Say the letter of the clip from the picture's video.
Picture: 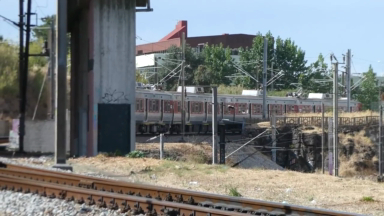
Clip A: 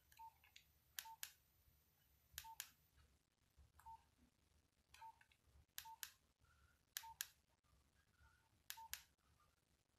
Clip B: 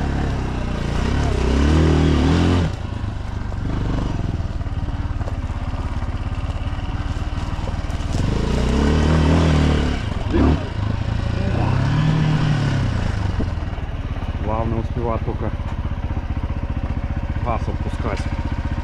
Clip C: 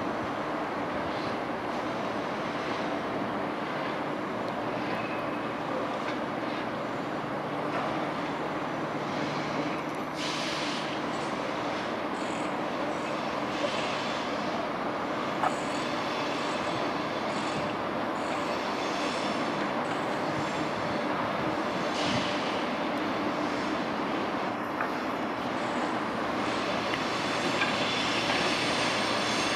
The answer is C